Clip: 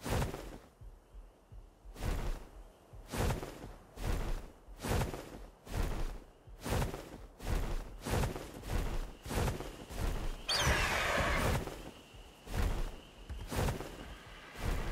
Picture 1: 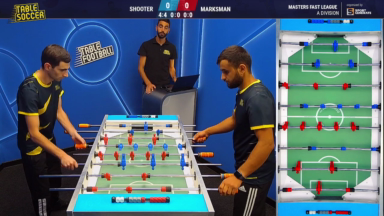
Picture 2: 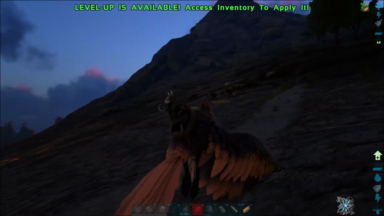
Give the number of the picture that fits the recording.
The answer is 2